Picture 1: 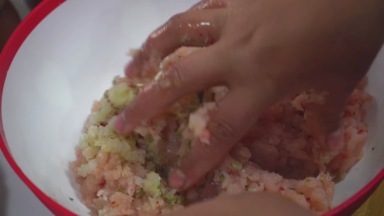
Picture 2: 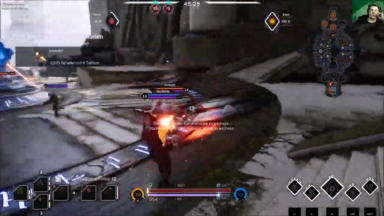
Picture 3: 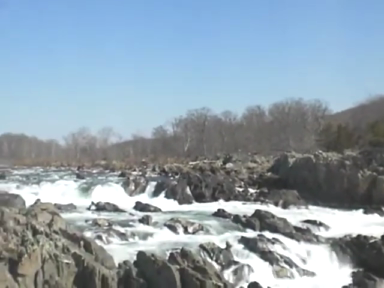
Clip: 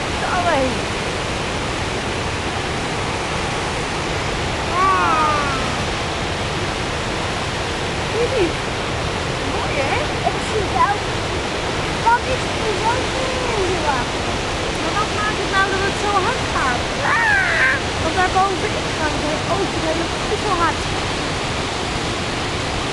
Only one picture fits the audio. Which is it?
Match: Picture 3